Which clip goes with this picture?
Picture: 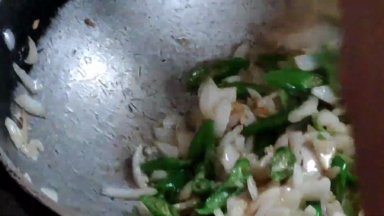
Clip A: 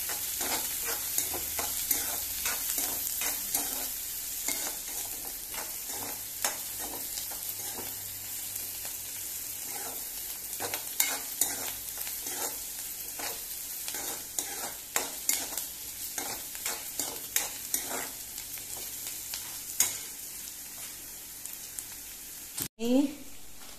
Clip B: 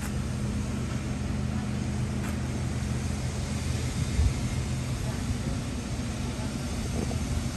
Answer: A